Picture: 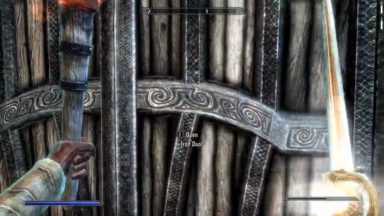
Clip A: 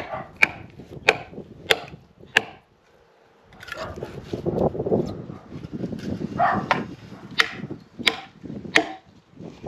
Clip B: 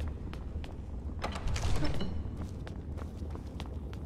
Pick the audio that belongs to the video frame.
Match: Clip B